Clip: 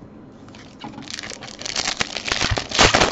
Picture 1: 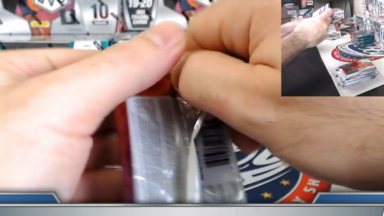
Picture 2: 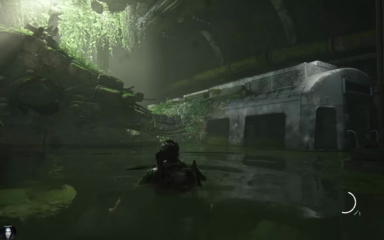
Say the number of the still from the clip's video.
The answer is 1